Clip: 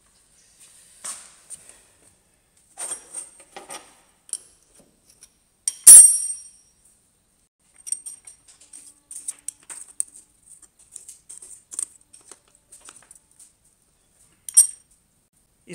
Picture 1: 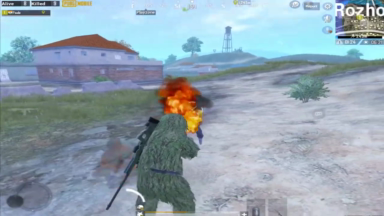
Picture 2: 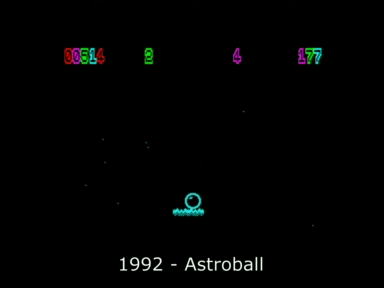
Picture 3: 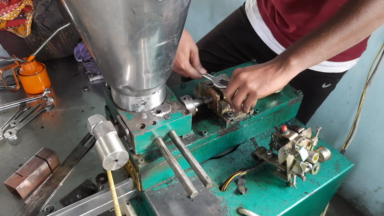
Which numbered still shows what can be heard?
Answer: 3